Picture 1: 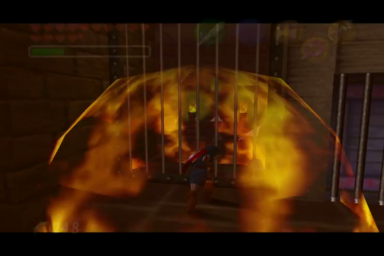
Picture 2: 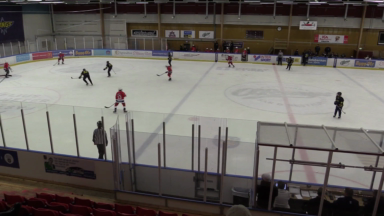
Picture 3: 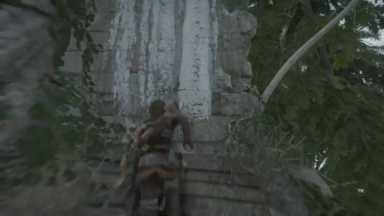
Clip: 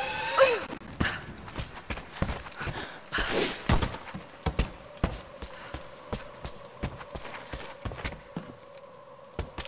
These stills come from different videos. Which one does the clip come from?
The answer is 3